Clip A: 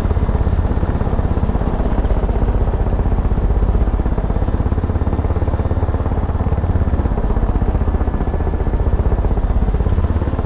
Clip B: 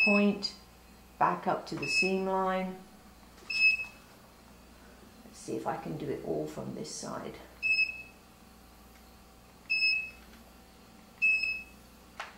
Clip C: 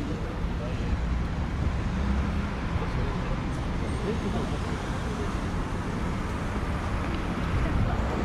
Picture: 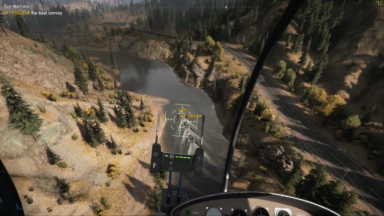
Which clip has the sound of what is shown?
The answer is A